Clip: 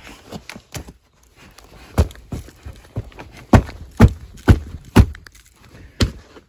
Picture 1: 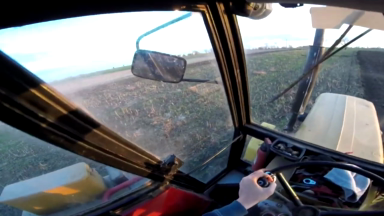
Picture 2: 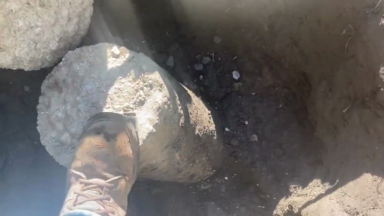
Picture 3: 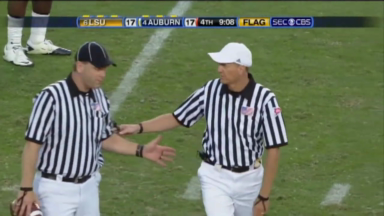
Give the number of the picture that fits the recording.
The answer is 2